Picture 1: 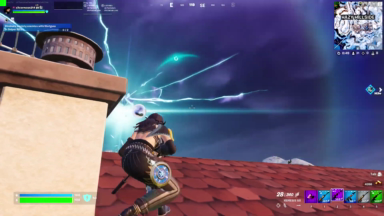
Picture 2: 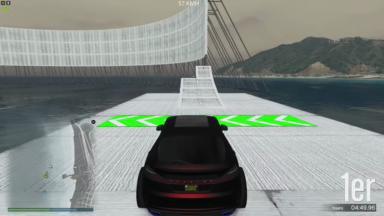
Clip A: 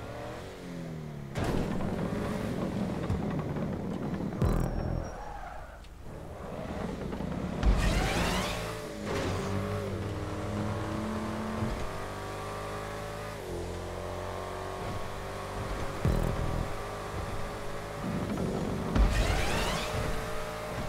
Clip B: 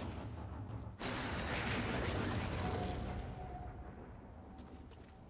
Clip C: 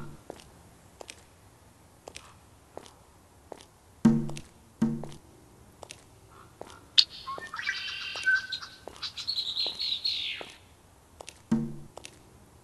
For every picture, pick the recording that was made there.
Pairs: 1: B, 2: A